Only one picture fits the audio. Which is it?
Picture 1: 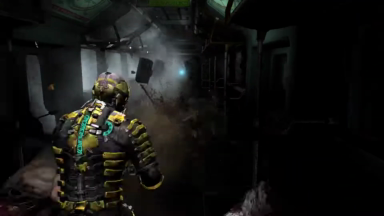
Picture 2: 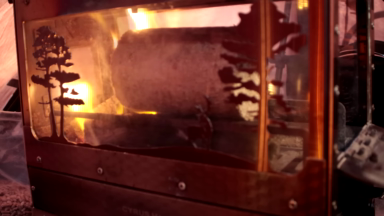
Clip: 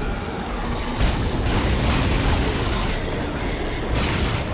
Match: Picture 1